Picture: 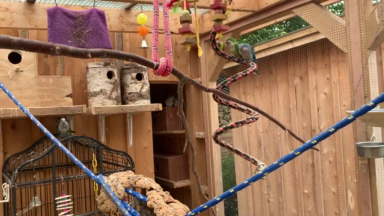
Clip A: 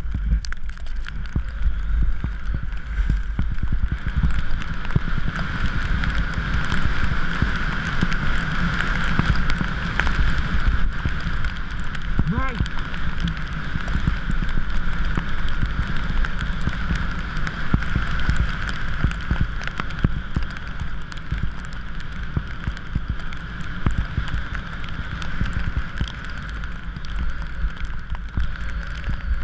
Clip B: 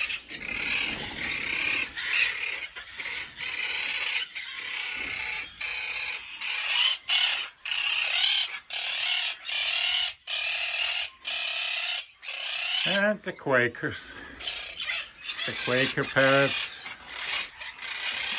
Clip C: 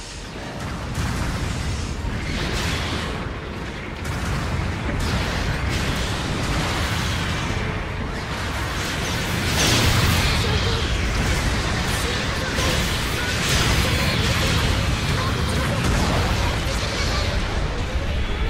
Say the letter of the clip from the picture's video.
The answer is B